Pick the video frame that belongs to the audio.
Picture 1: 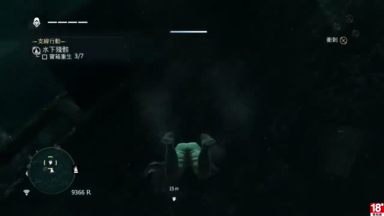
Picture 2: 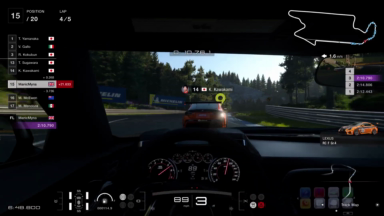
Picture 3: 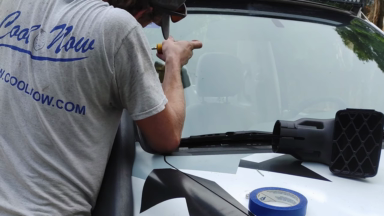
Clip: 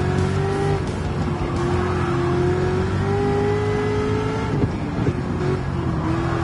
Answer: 2